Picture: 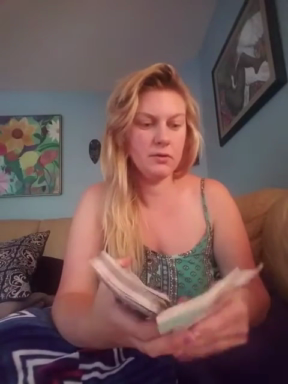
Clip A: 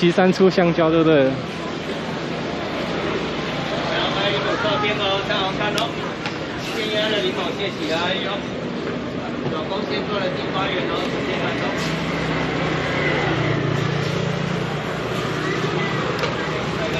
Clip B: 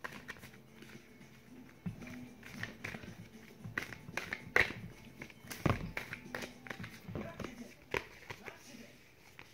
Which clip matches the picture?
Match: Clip B